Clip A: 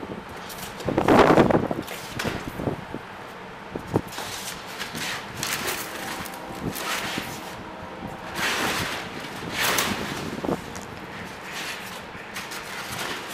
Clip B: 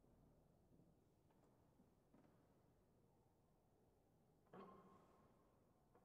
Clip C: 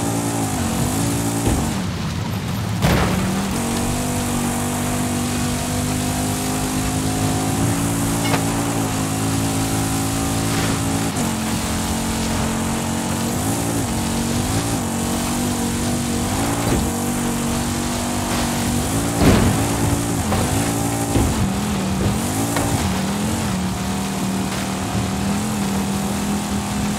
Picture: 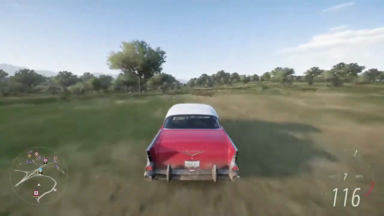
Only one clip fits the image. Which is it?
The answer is C